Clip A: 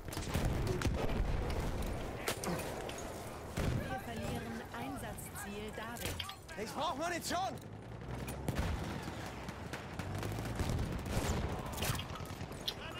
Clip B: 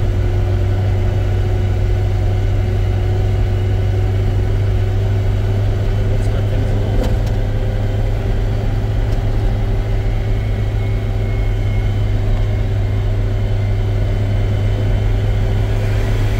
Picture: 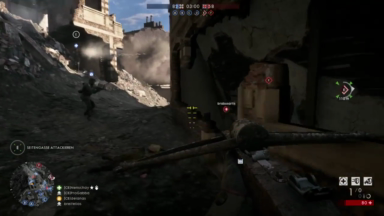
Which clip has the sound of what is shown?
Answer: A